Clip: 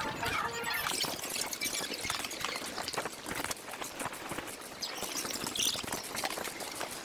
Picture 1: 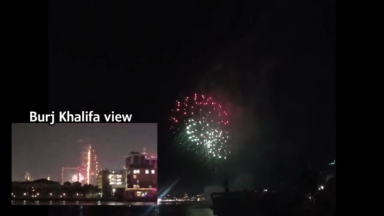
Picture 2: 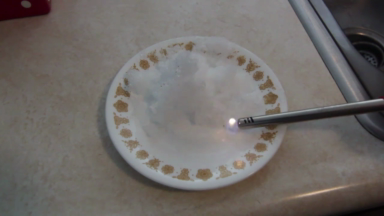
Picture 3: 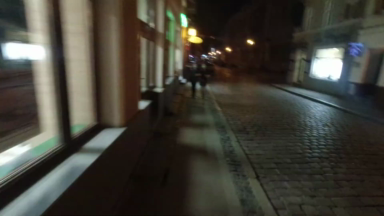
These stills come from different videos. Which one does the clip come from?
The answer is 3